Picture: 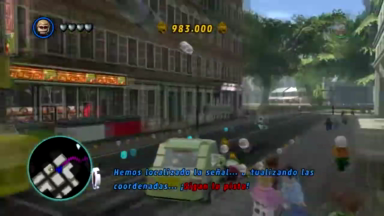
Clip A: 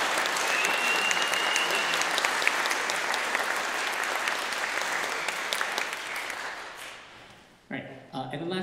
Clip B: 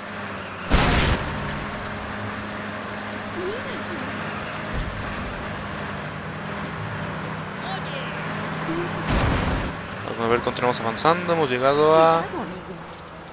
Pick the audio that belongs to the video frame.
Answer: B